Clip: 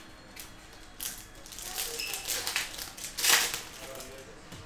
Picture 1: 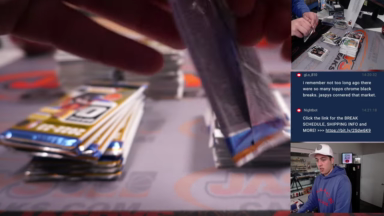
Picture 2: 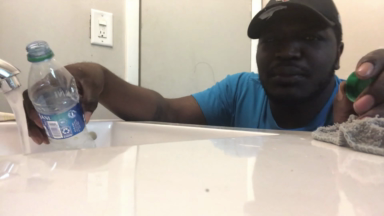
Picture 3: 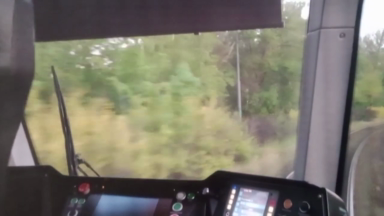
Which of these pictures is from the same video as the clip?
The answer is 1